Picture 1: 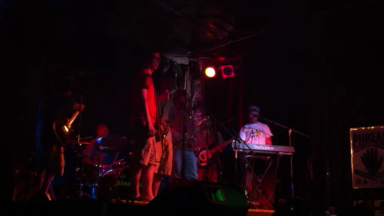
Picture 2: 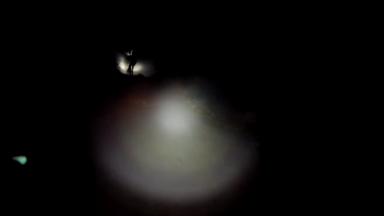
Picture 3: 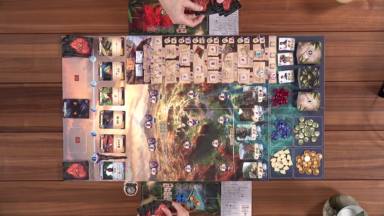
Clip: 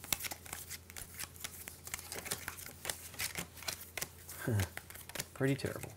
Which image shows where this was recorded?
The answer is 3